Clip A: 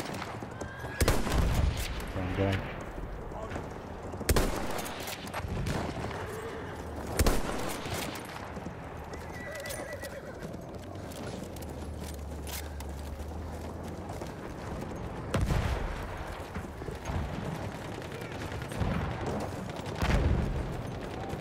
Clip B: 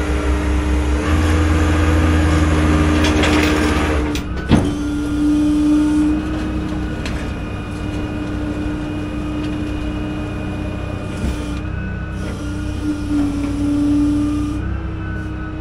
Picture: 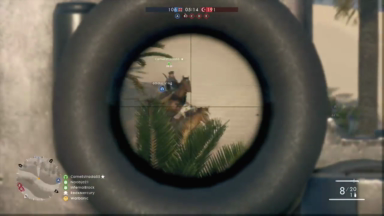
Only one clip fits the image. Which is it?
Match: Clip A